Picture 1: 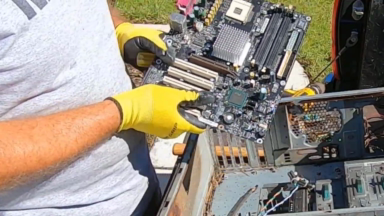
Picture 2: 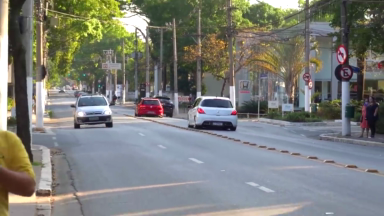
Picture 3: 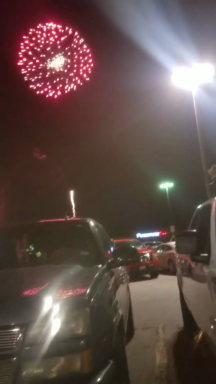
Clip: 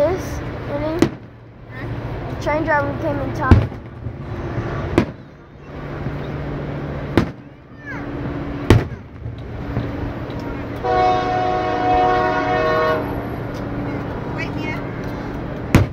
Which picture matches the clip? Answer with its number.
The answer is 3